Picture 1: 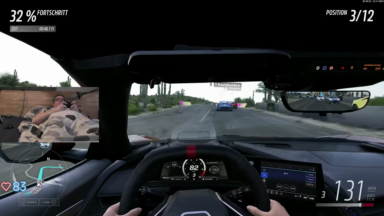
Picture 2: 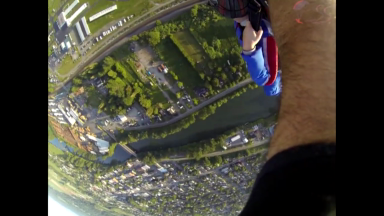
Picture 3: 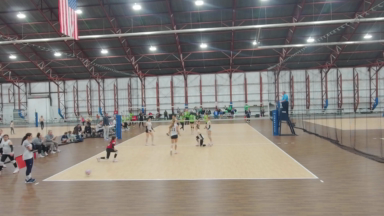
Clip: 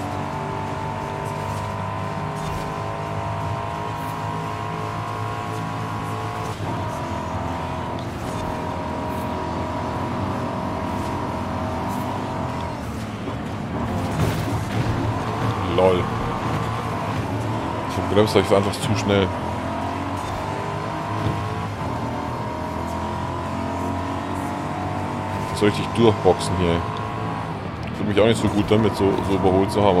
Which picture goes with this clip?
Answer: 1